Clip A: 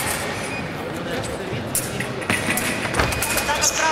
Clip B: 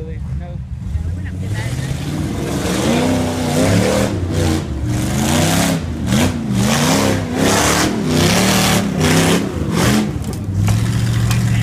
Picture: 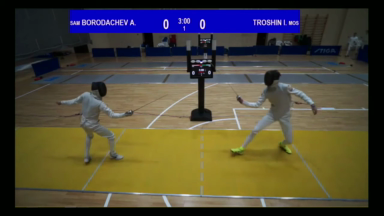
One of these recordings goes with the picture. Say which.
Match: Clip A